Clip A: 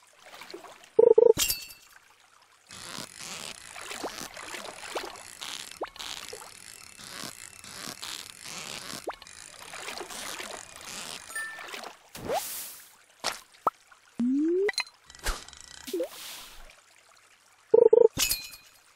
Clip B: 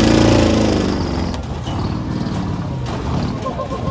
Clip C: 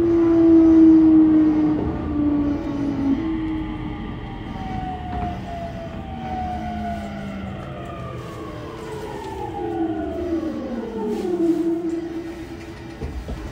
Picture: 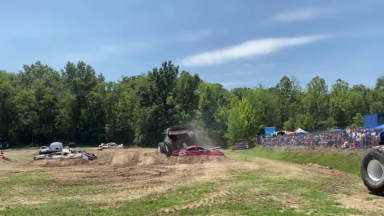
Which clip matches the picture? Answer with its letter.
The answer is B